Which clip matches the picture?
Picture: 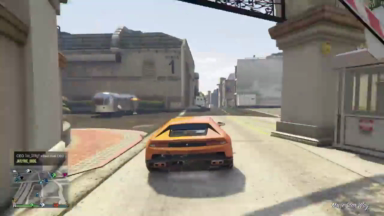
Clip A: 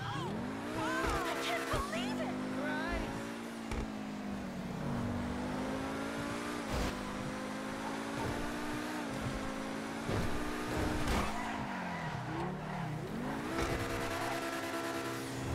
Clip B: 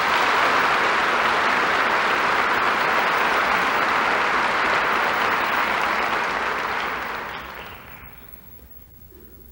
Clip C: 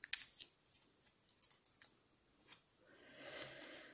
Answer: A